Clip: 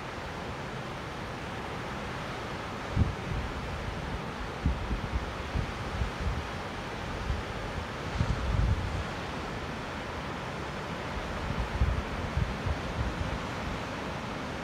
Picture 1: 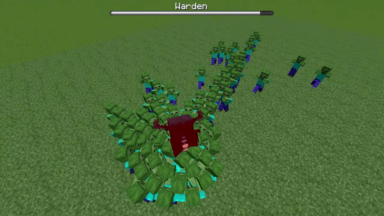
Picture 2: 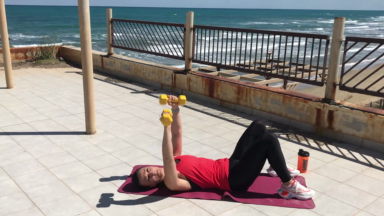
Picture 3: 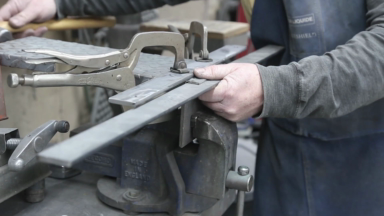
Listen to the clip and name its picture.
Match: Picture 2